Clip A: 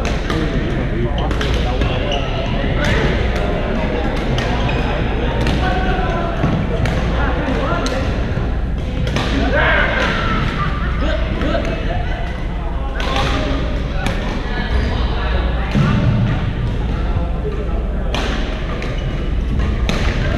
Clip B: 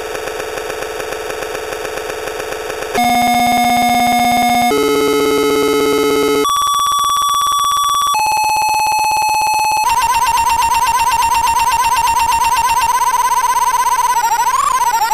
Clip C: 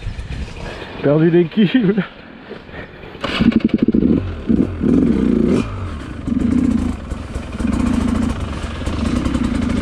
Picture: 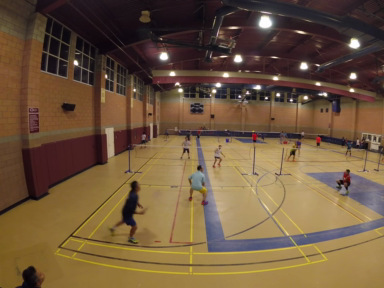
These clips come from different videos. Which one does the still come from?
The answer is A